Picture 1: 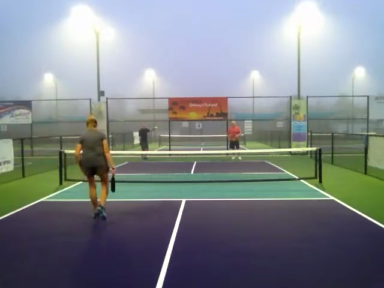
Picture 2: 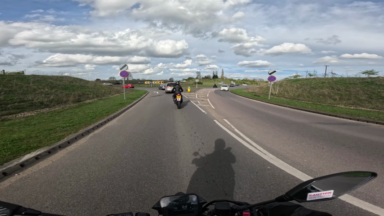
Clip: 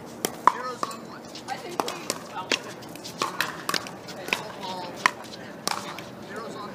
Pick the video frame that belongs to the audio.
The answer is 1